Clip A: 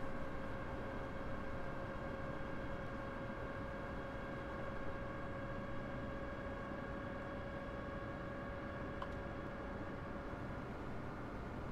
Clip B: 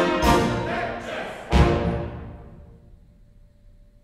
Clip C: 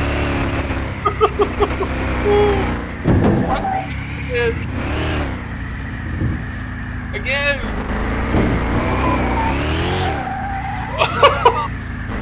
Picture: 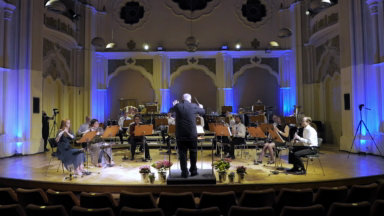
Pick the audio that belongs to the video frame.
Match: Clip B